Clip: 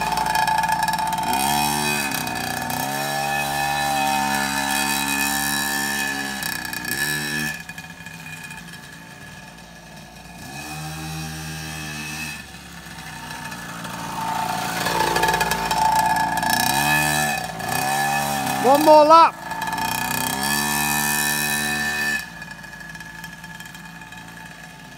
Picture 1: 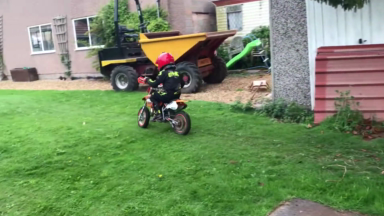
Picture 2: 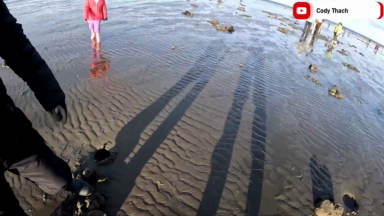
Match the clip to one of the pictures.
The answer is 1